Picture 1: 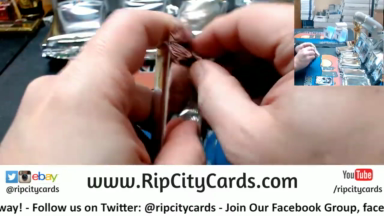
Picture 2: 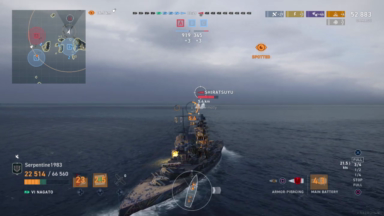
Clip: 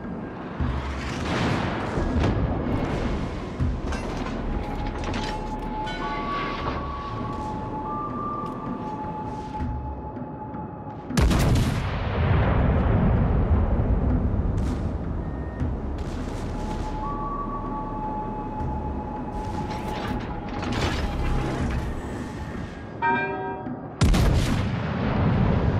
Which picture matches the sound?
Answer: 2